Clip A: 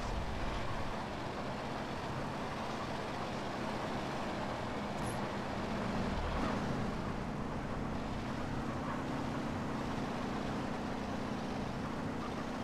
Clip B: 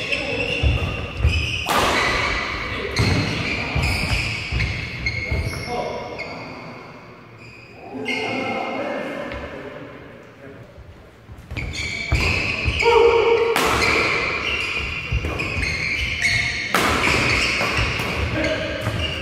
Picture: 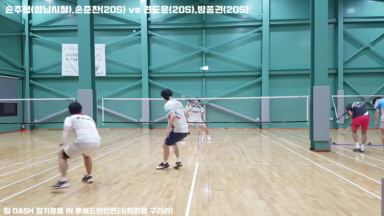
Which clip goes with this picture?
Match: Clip B